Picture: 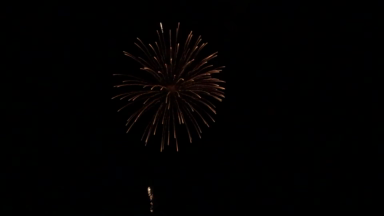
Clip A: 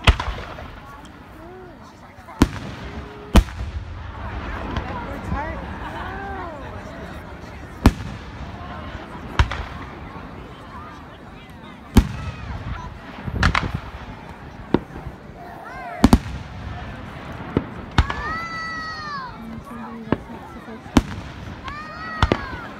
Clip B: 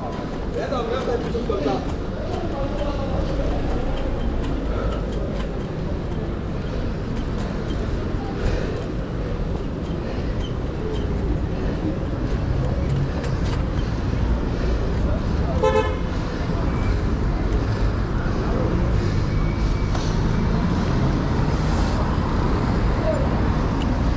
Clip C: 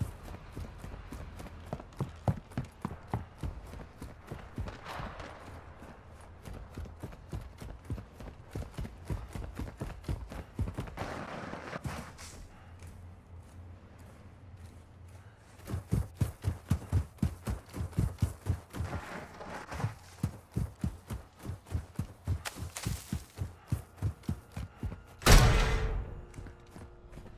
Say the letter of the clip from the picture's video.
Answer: A